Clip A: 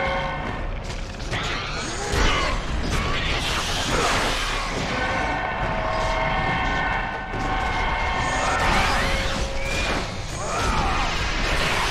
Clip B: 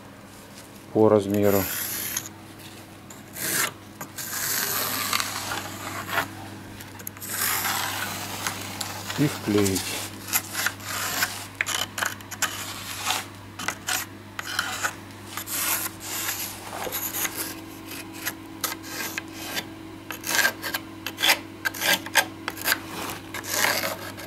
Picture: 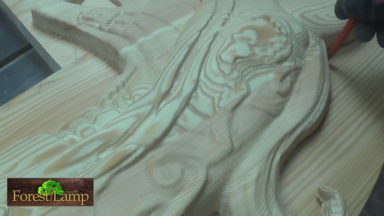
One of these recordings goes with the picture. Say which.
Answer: B